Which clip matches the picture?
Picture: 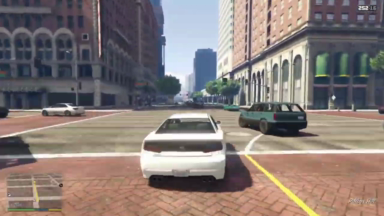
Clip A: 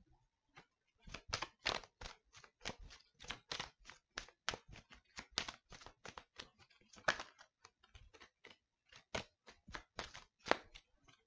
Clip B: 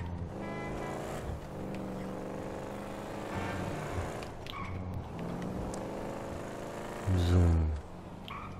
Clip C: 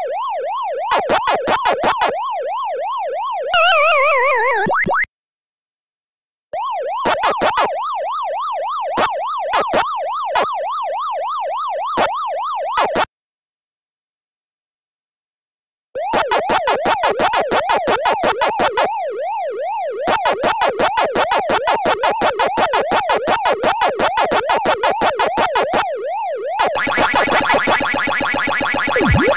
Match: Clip B